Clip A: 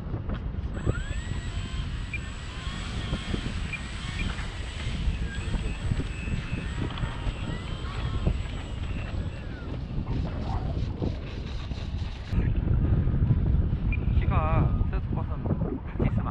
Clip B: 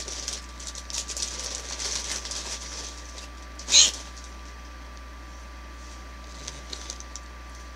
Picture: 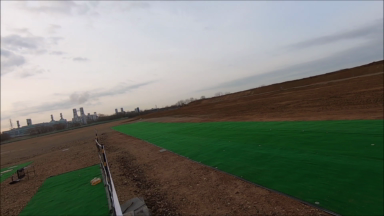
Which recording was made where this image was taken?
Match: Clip A